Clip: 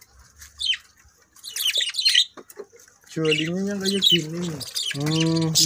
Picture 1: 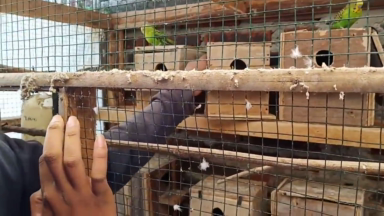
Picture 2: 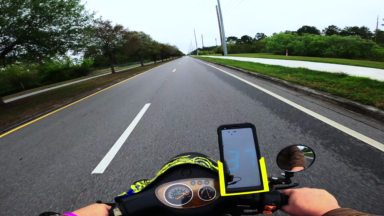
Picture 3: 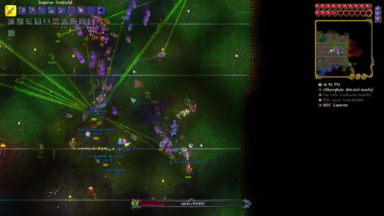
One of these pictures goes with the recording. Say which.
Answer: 1